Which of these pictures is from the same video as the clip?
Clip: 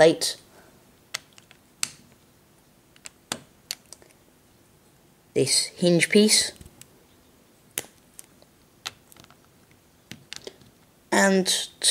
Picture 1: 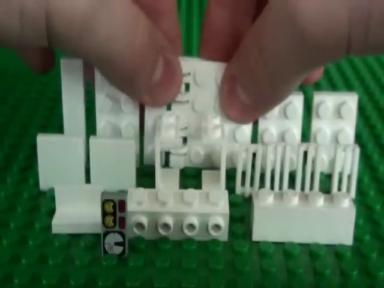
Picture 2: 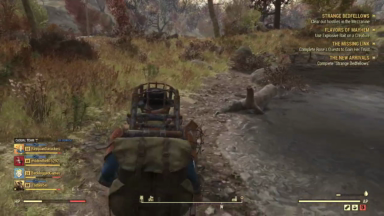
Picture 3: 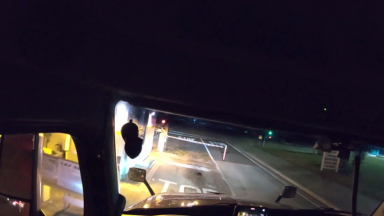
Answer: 1